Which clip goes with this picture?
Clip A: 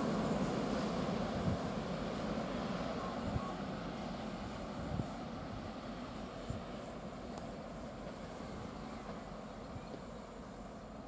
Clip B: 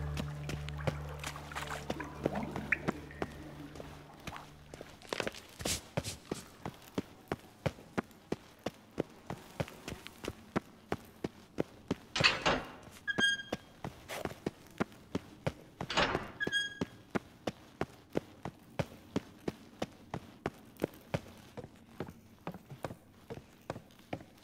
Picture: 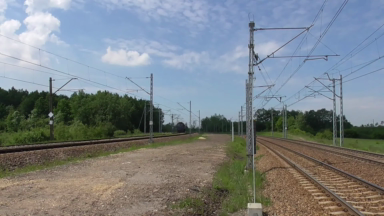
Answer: A